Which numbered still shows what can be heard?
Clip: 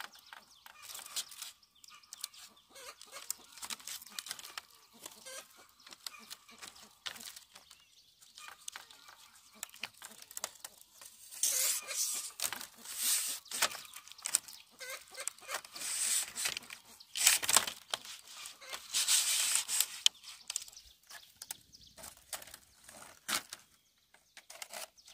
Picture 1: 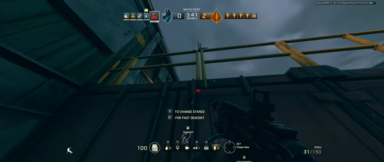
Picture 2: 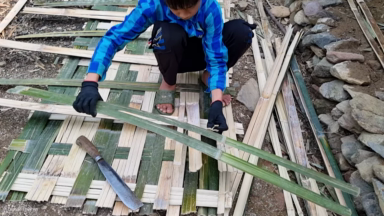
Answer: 2